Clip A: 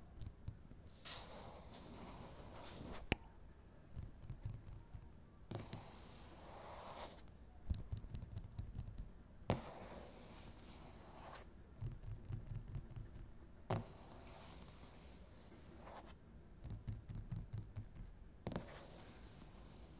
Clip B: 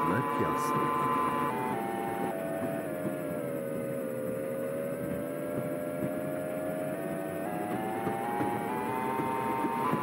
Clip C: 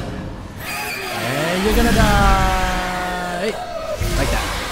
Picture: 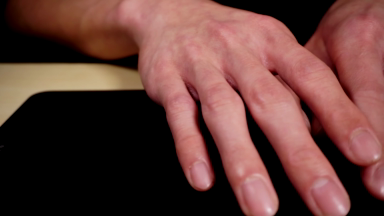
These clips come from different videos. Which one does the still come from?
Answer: A